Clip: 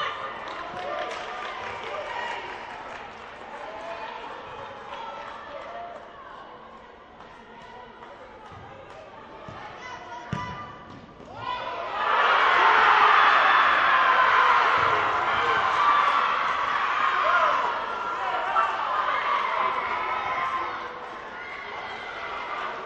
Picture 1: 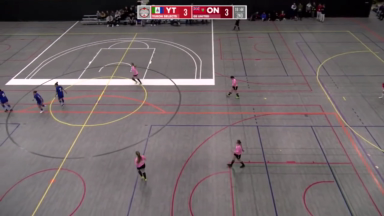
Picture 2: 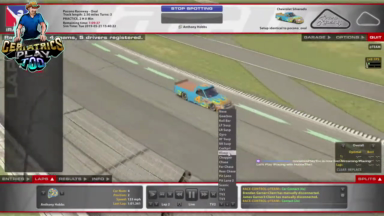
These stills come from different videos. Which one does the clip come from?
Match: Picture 1